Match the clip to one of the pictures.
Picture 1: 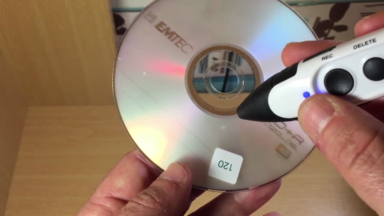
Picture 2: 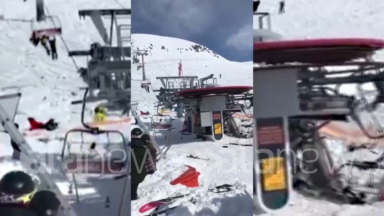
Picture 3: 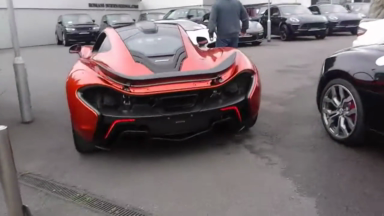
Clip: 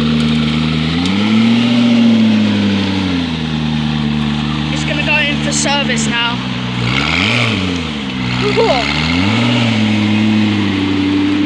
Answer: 3